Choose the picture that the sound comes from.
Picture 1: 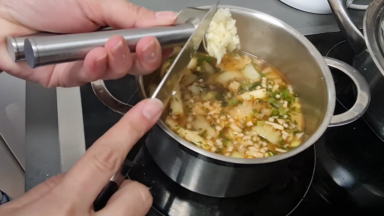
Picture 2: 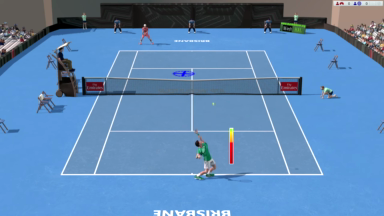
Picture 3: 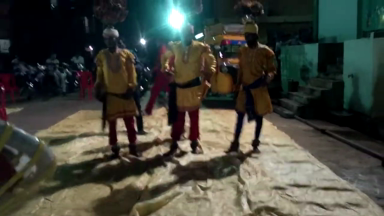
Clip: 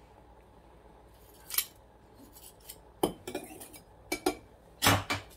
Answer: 1